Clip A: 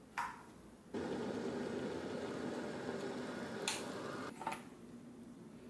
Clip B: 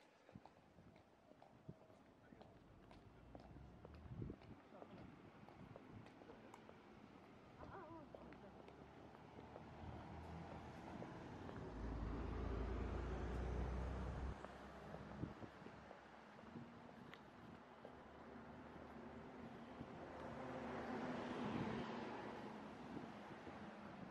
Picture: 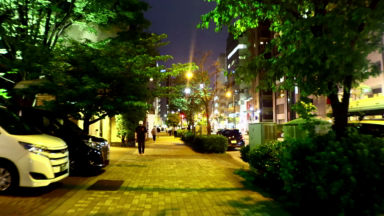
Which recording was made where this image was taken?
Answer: B